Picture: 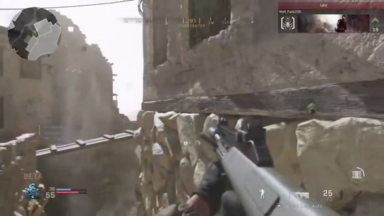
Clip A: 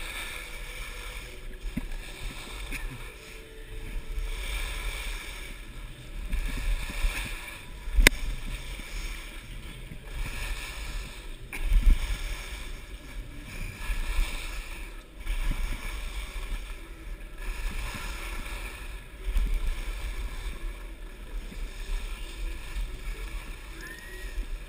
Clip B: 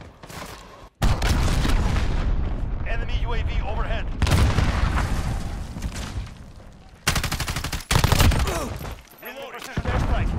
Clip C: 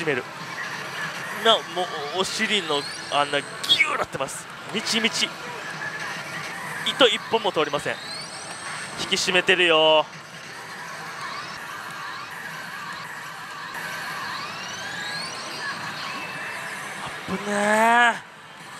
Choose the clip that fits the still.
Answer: B